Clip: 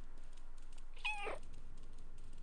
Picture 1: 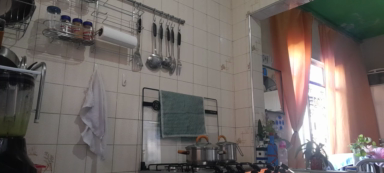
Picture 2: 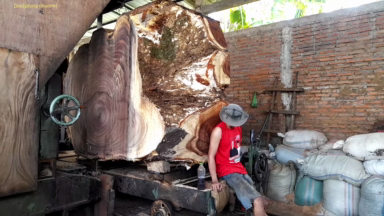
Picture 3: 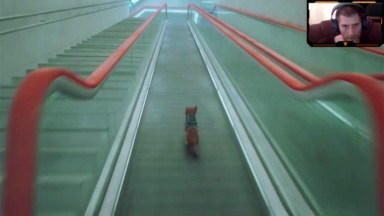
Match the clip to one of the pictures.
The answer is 3